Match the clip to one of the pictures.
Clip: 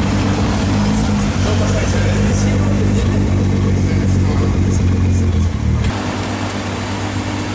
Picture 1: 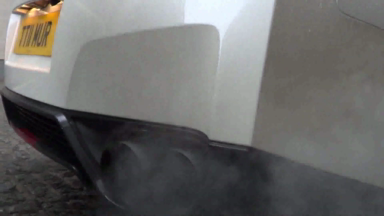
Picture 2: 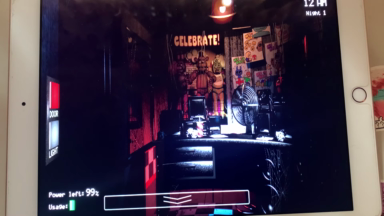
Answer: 1